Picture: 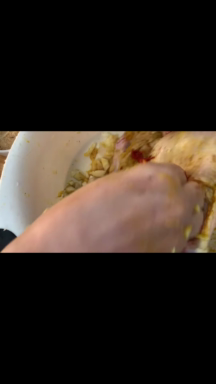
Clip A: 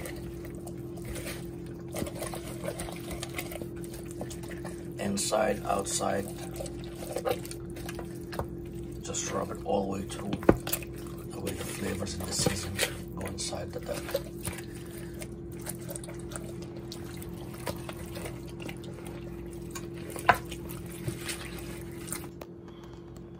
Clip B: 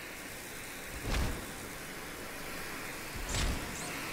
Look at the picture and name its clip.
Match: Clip A